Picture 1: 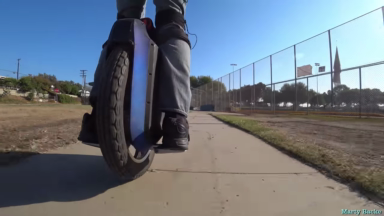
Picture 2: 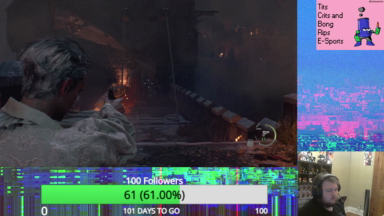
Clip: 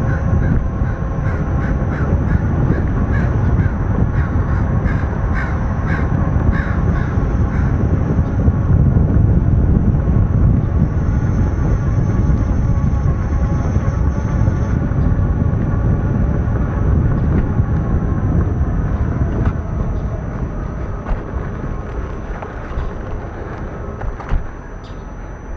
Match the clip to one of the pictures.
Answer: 1